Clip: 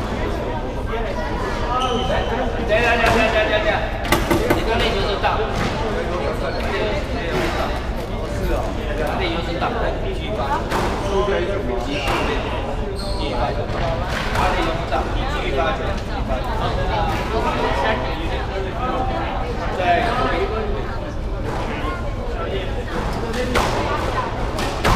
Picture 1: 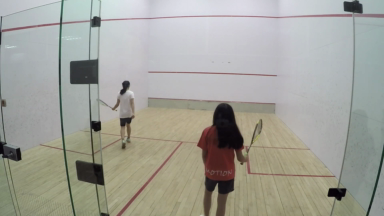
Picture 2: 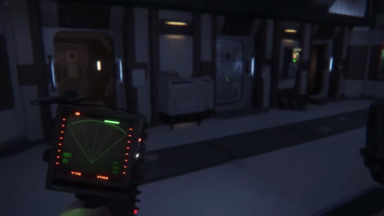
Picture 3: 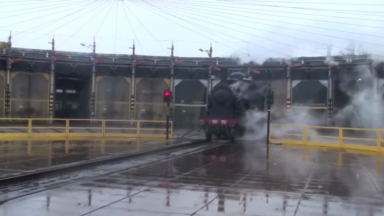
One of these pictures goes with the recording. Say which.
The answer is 1